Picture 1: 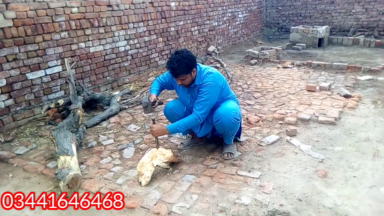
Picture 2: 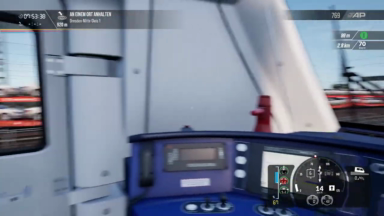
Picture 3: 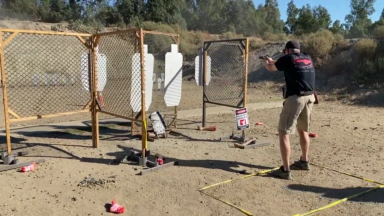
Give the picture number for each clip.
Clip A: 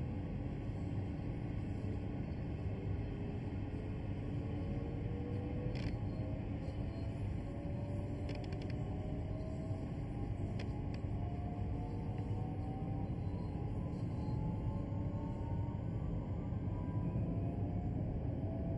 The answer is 2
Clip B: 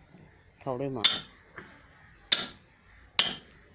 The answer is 1